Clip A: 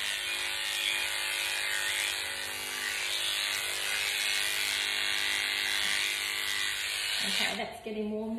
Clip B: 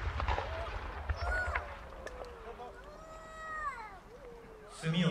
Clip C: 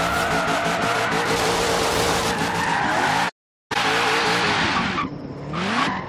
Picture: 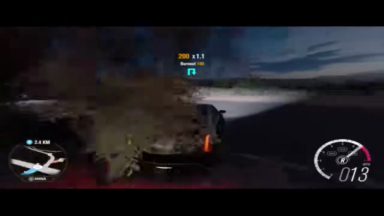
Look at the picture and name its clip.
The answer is C